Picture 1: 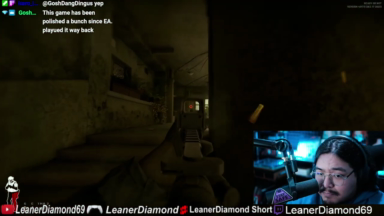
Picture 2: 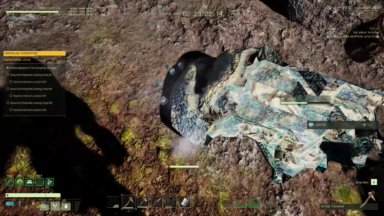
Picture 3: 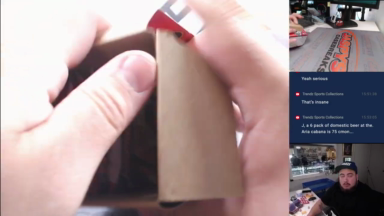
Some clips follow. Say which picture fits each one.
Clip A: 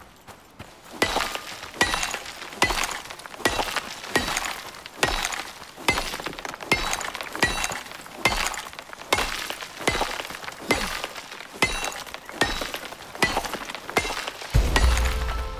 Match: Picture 2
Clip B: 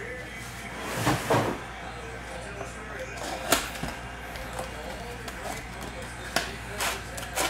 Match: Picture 3